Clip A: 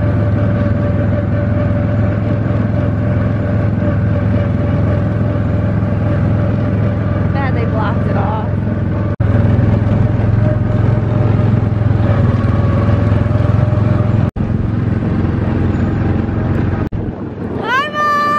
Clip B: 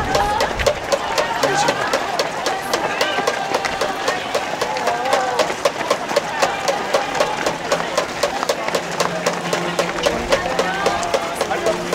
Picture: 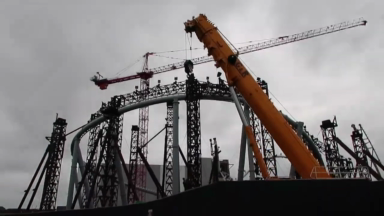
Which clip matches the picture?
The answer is A